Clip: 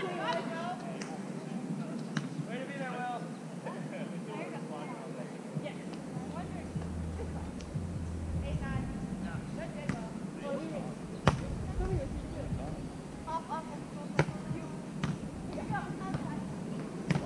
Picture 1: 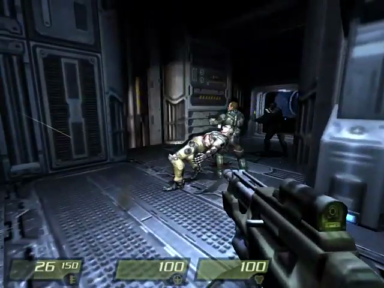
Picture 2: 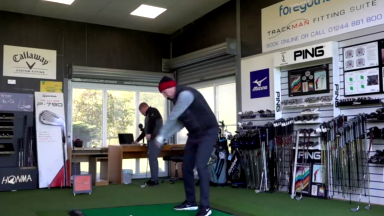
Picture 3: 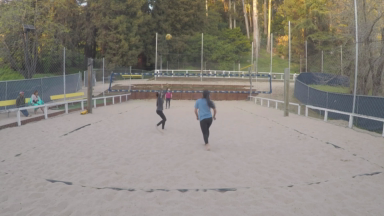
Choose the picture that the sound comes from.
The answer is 3